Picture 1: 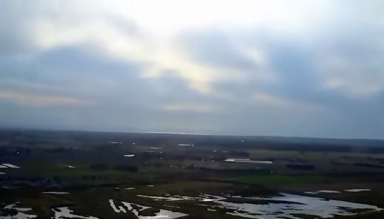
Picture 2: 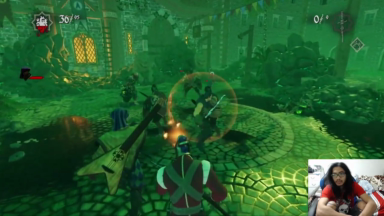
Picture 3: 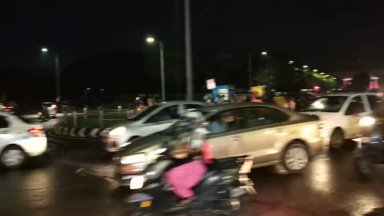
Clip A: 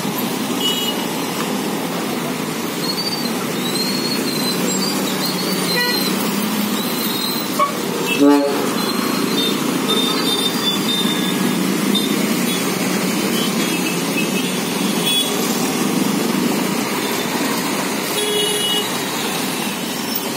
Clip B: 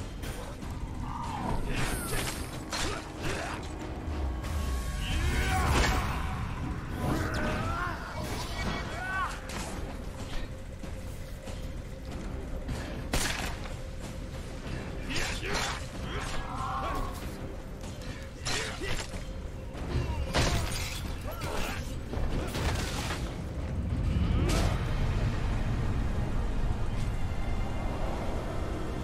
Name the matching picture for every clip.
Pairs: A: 3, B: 2